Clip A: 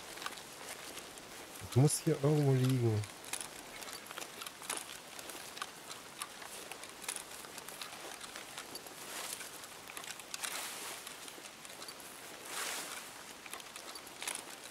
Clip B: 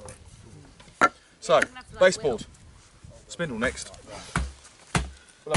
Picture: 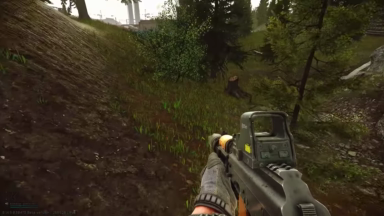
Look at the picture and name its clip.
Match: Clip A